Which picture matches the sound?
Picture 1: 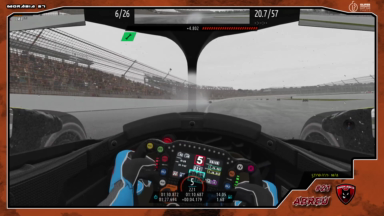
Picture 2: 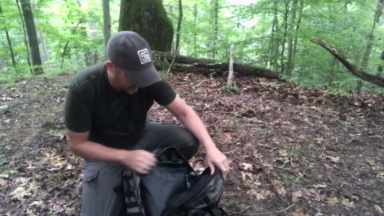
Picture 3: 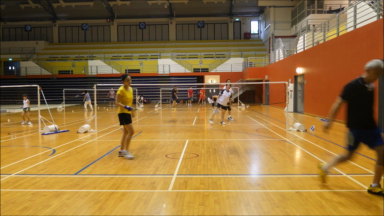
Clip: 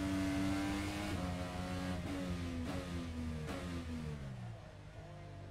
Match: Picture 1